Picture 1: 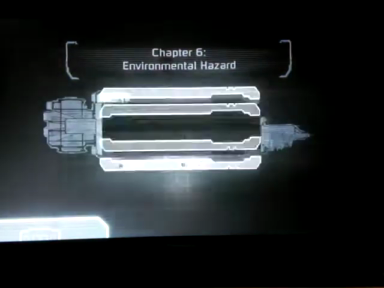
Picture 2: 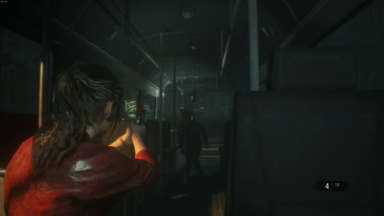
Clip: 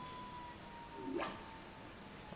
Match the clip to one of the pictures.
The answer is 1